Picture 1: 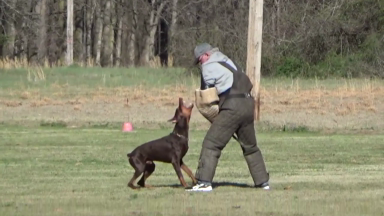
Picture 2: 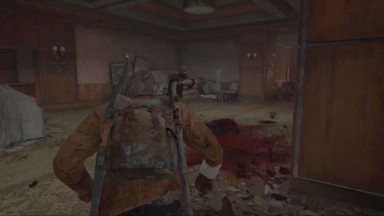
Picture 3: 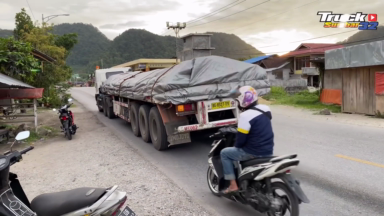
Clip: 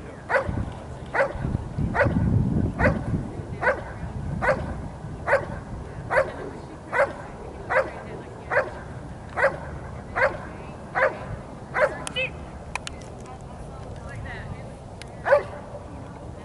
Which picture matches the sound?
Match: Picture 1